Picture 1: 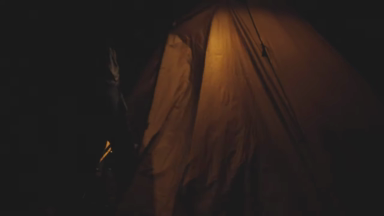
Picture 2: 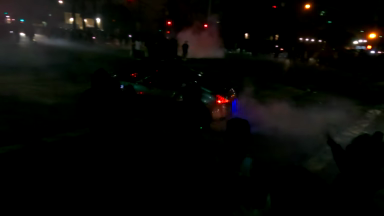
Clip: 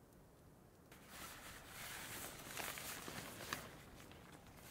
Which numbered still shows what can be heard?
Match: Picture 1